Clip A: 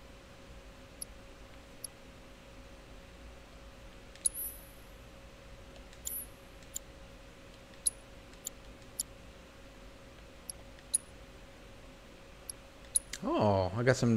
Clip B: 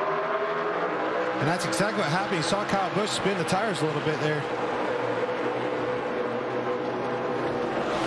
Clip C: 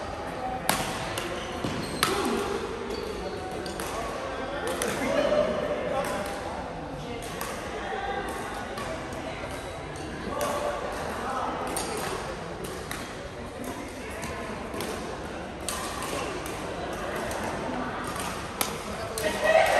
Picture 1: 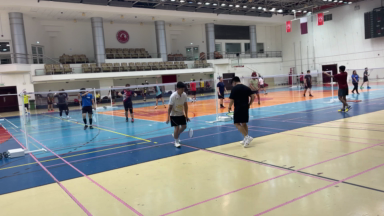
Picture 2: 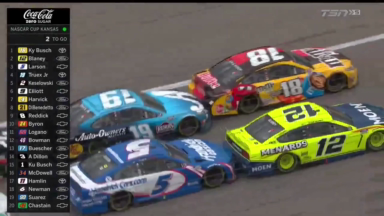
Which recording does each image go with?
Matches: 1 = C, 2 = B